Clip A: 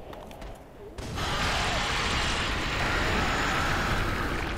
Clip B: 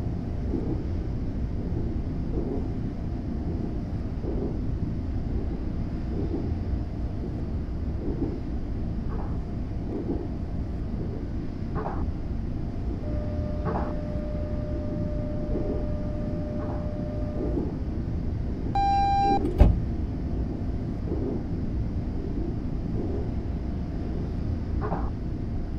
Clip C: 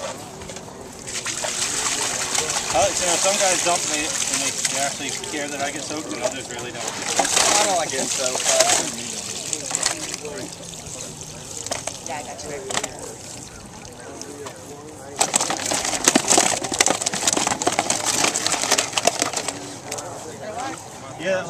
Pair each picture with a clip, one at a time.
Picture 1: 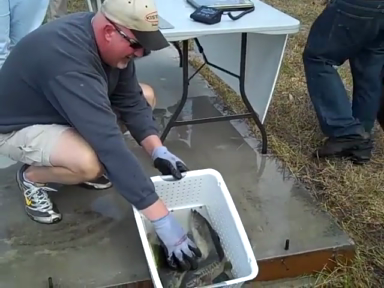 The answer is C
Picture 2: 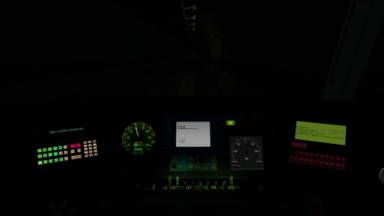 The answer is B